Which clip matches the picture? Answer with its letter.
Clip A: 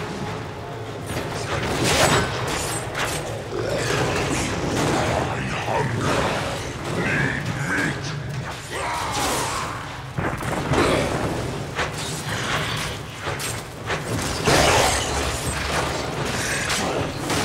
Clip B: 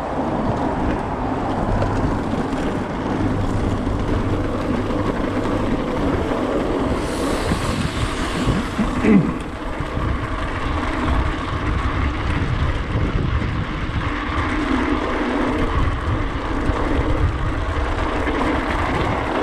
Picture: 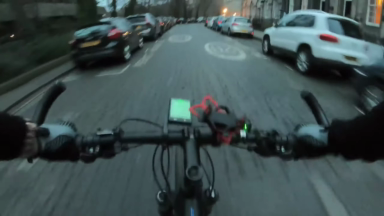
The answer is B